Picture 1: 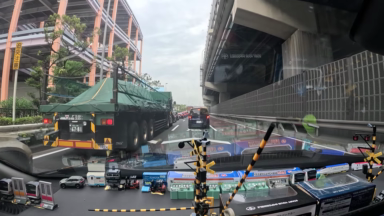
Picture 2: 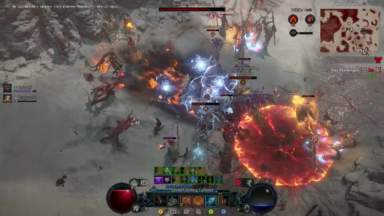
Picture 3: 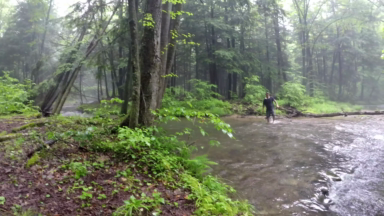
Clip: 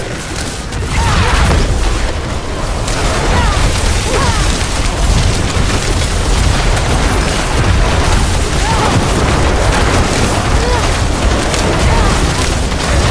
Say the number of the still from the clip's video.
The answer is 2